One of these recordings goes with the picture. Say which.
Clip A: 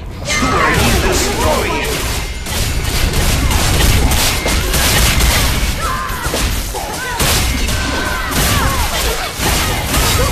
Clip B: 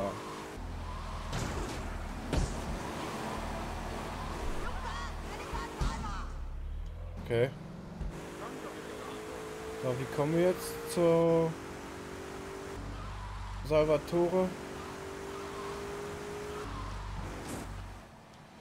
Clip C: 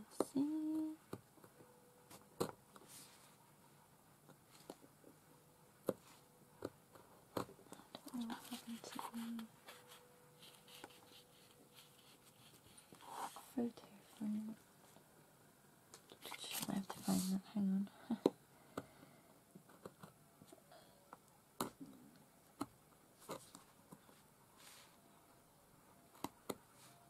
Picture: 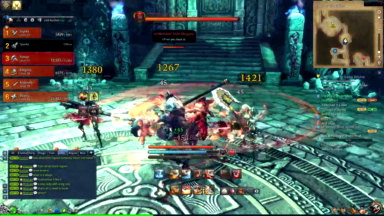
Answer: A